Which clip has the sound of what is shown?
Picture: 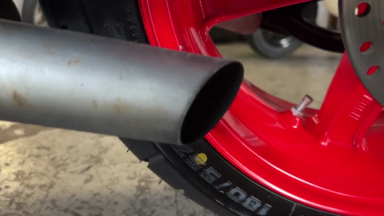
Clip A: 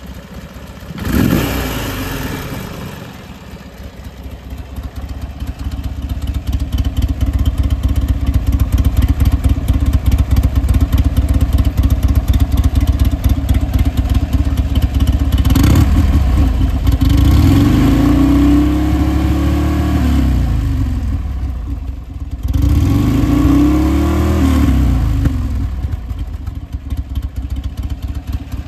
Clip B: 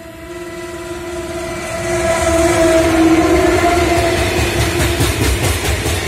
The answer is A